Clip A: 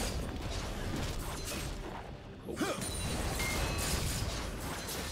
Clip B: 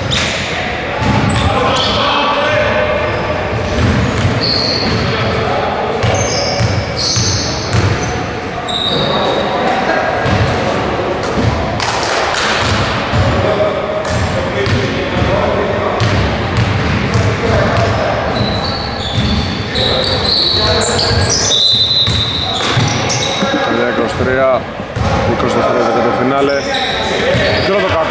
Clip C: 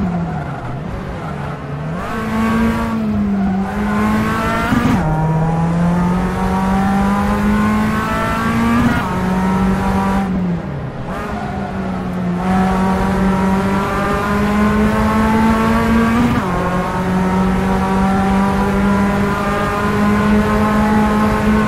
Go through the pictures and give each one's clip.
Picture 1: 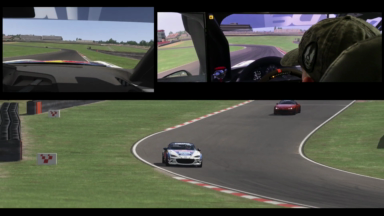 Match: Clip C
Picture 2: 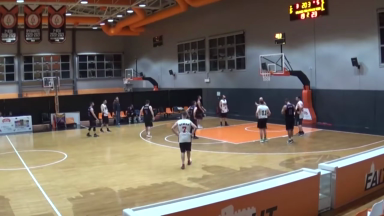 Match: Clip B